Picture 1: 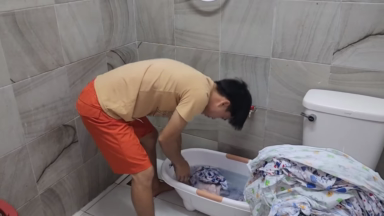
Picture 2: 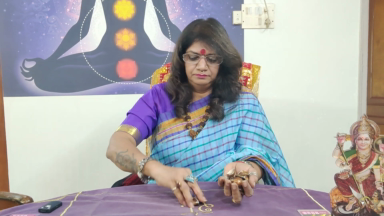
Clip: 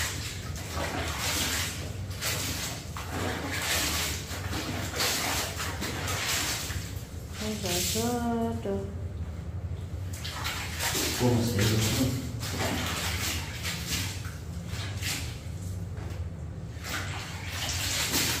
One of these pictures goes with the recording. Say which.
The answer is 1